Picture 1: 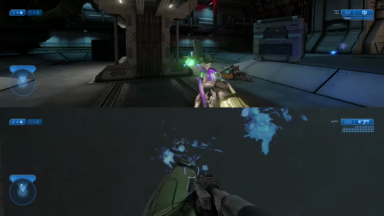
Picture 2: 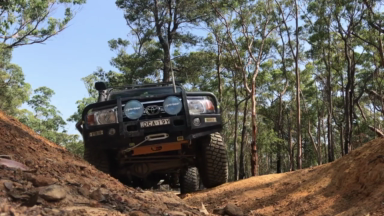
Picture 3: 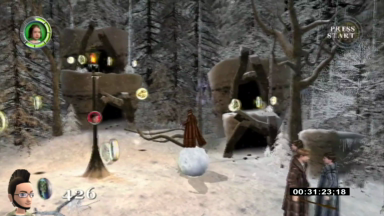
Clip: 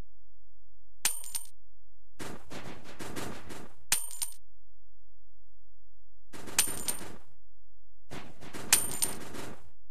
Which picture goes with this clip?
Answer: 3